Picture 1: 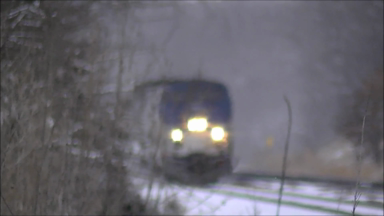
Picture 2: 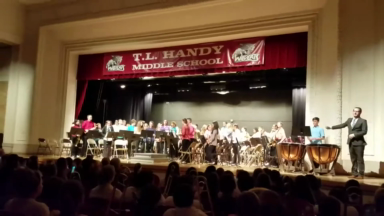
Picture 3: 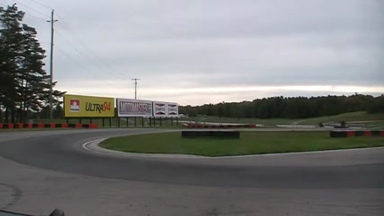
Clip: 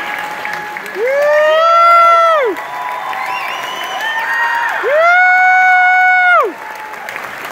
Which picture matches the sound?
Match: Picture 2